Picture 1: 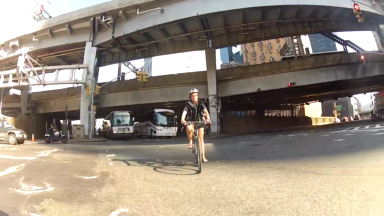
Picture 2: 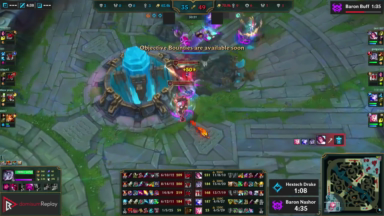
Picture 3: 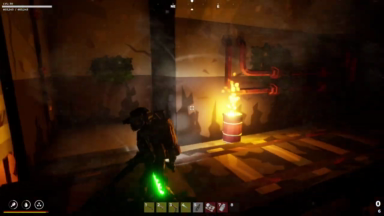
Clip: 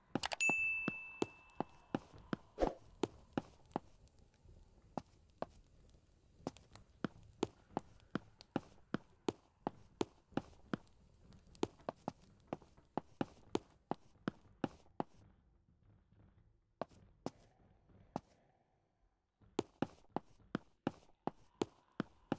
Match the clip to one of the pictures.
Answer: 3